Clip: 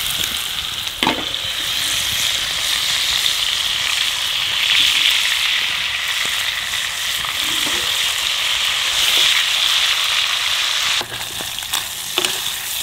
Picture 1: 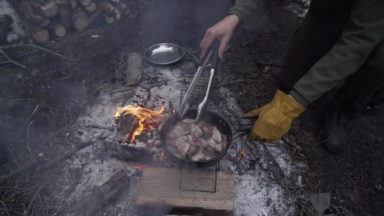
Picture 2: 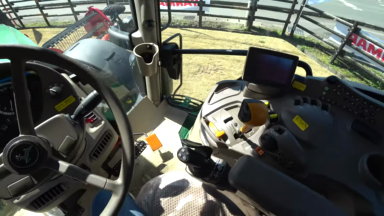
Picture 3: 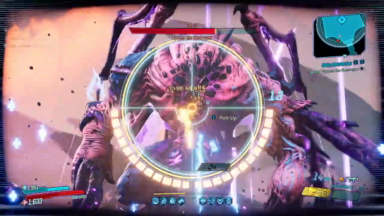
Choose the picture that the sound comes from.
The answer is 1